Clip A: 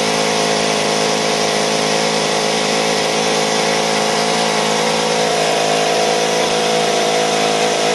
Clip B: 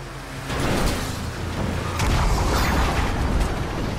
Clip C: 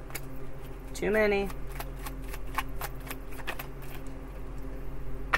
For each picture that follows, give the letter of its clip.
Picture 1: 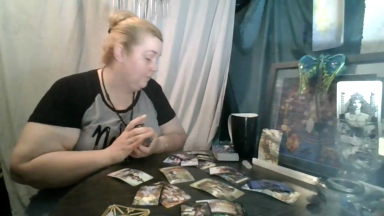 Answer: C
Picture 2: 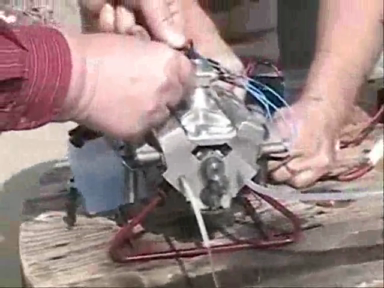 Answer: A